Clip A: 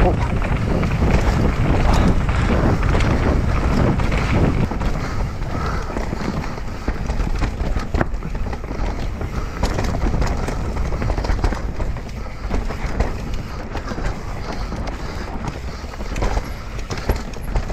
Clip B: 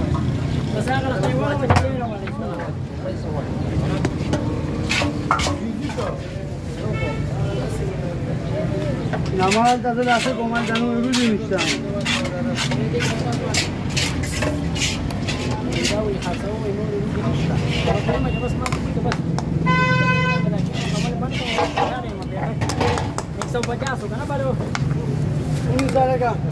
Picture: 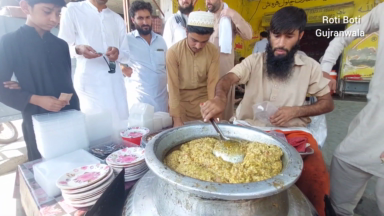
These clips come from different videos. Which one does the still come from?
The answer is B